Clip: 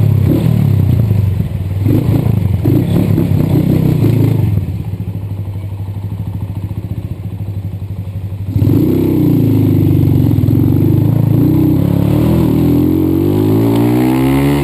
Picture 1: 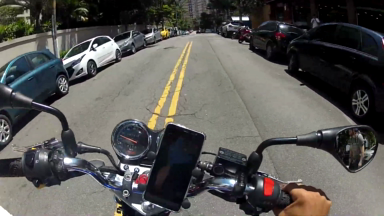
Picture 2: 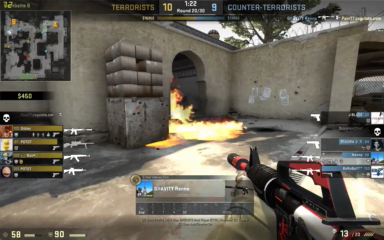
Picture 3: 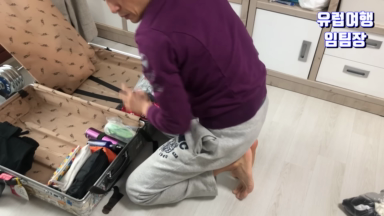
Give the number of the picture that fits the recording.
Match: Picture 1